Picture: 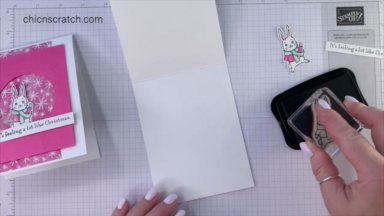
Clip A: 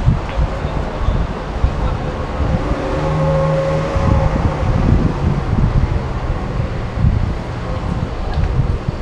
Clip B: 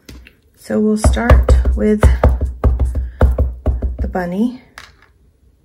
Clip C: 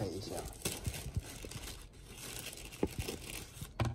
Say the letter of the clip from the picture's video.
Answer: B